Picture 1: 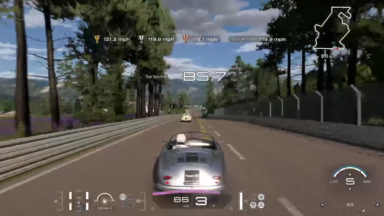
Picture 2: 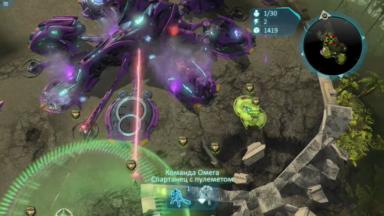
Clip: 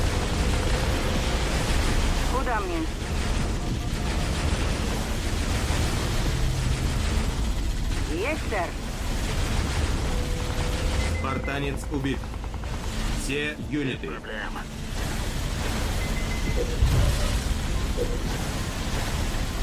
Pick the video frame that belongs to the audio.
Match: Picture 2